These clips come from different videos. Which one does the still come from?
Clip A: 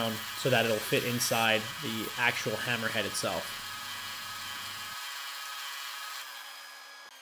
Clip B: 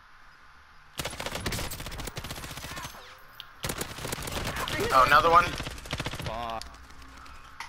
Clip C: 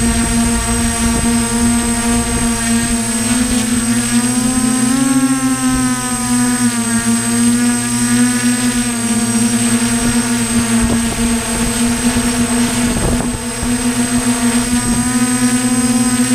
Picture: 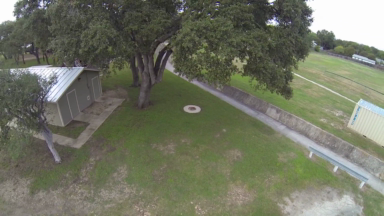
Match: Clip C